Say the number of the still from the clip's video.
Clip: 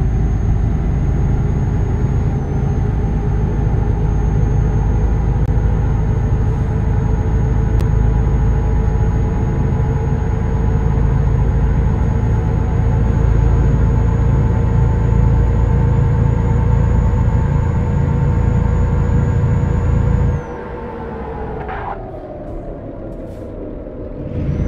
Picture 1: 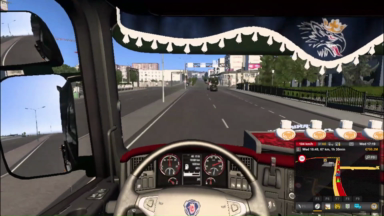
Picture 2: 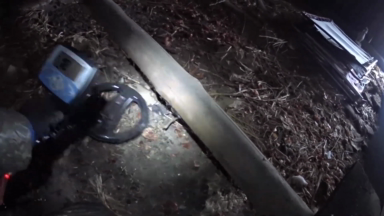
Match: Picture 1